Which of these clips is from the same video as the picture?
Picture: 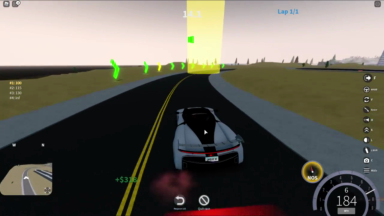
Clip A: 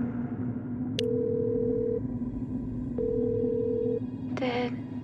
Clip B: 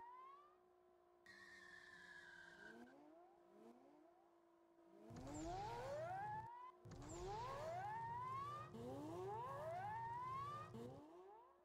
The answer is B